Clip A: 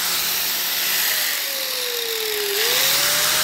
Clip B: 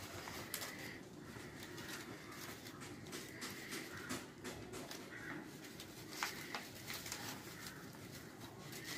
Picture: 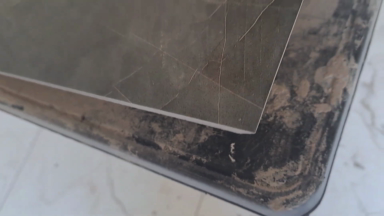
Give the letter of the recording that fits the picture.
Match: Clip A